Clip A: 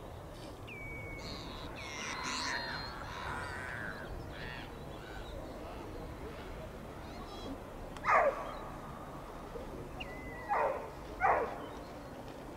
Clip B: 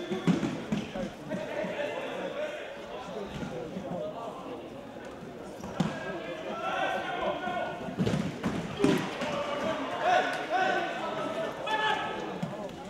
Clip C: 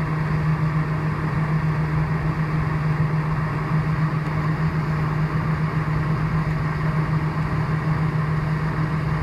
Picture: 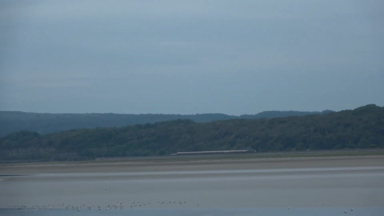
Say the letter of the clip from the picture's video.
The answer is A